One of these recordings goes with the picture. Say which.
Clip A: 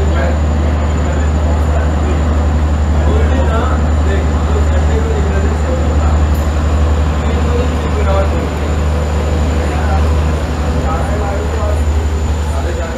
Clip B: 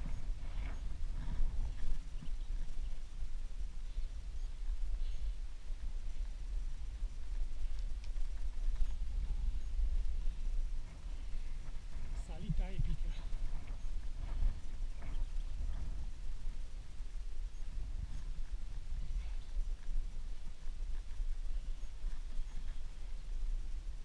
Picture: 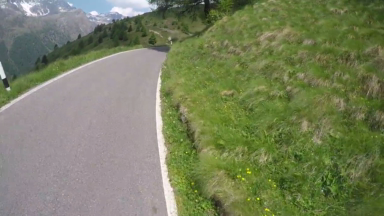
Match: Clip B